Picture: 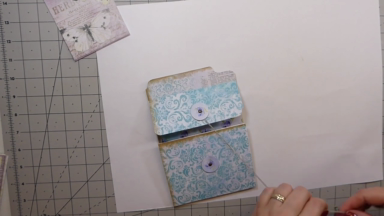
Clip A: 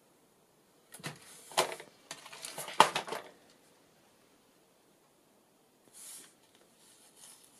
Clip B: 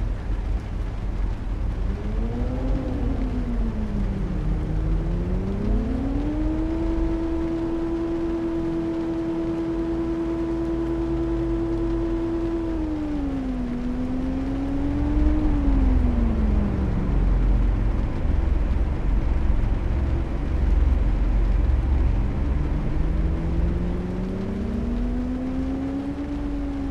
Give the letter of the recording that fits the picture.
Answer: A